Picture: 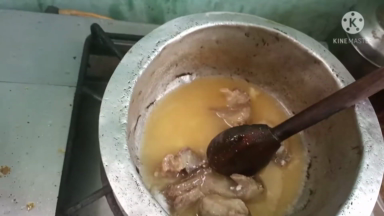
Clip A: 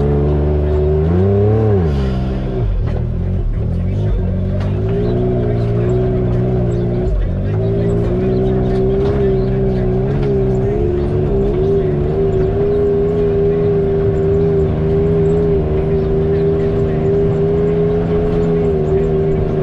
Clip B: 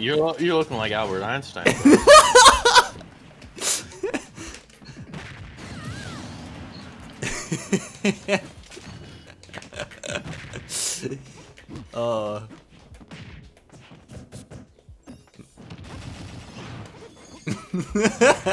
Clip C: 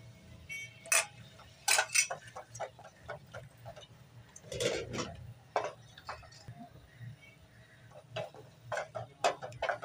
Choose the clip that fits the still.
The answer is C